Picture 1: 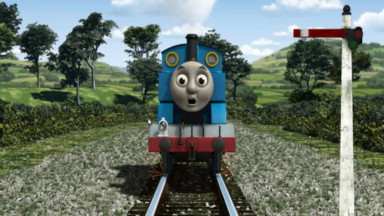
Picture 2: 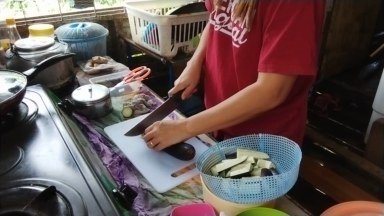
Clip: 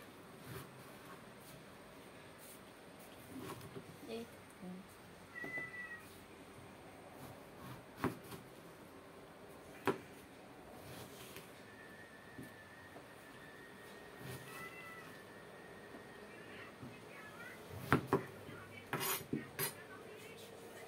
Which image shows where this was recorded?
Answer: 2